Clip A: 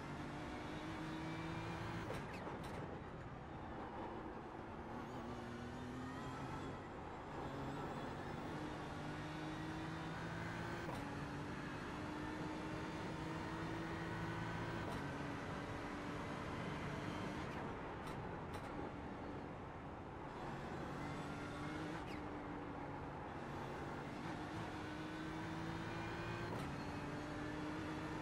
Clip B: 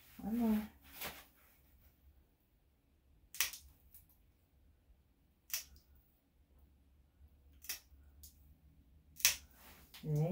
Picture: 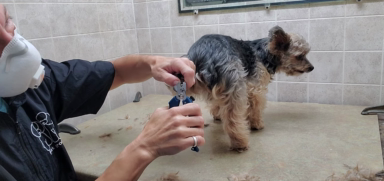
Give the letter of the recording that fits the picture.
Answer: B